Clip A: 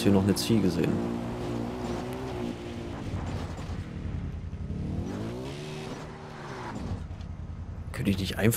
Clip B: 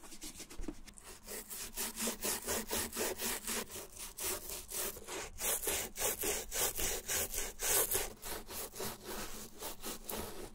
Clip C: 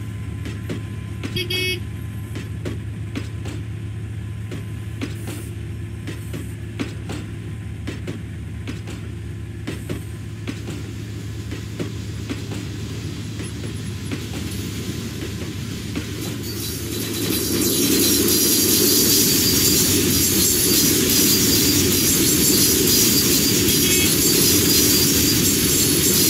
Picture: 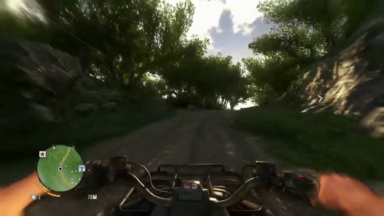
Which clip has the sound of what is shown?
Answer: A